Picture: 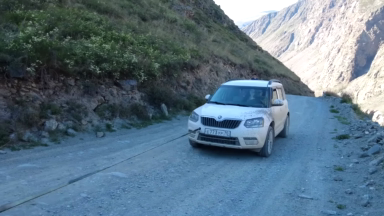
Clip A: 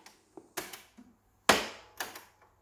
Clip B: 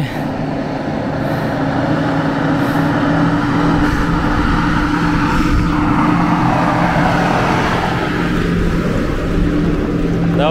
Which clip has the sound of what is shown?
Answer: B